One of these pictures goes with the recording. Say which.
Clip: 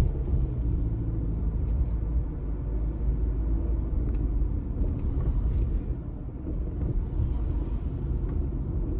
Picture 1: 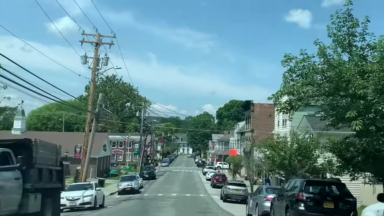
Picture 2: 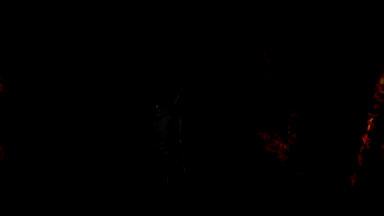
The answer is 1